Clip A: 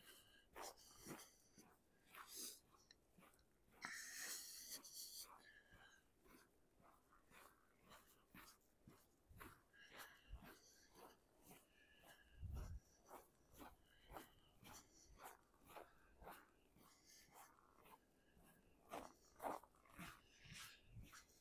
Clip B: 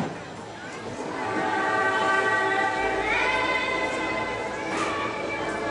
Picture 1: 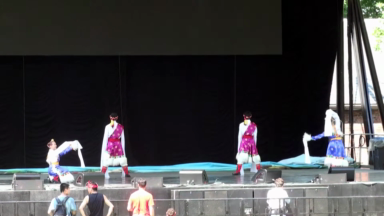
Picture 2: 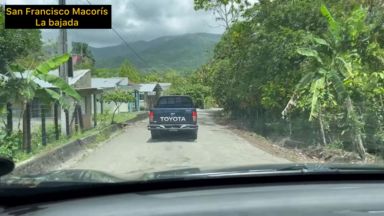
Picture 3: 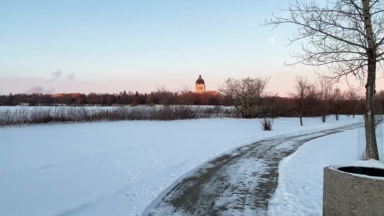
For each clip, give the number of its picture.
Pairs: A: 3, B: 1